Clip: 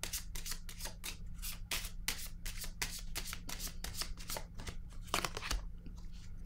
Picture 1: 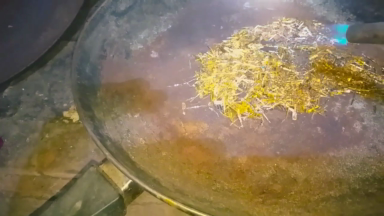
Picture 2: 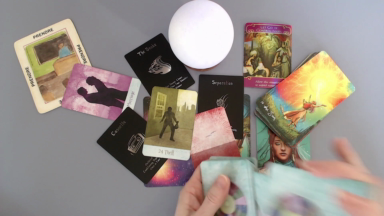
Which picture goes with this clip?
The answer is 2